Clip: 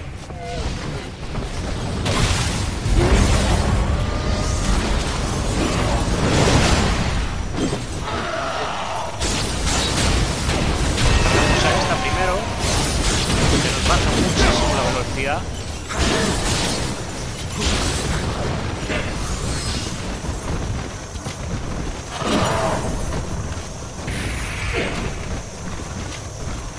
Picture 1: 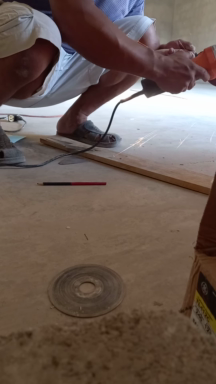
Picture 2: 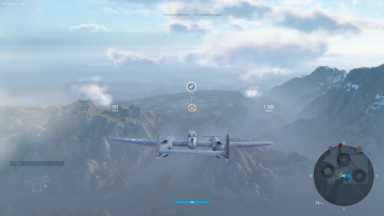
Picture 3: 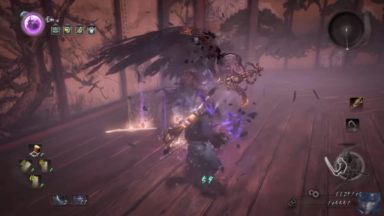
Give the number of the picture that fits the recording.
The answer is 3